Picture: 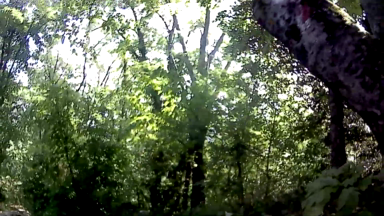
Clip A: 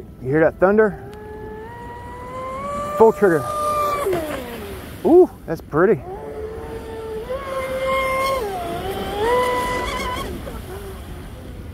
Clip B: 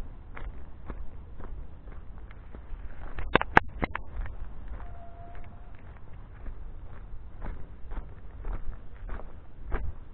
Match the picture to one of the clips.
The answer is B